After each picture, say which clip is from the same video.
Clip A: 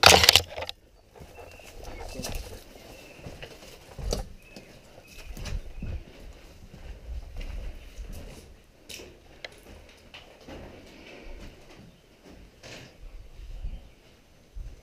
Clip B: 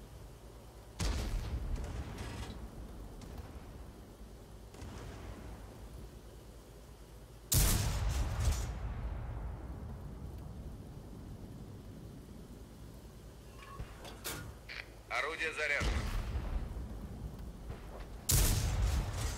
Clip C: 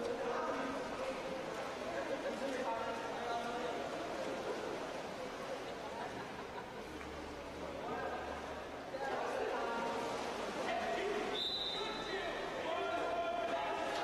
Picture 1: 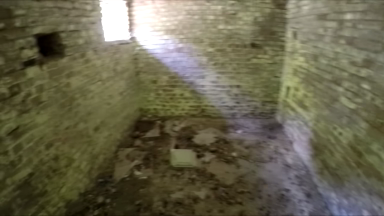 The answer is A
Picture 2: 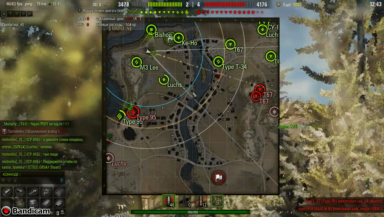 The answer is B